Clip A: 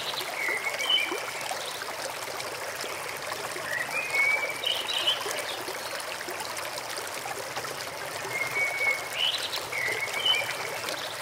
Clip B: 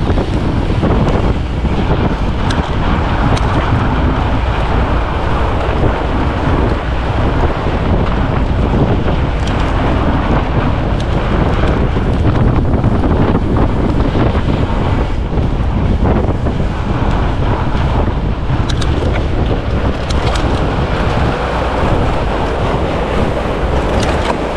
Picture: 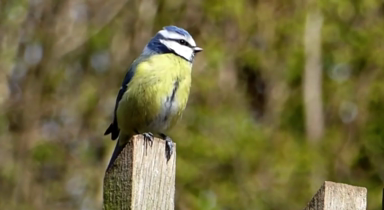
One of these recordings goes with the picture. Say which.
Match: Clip A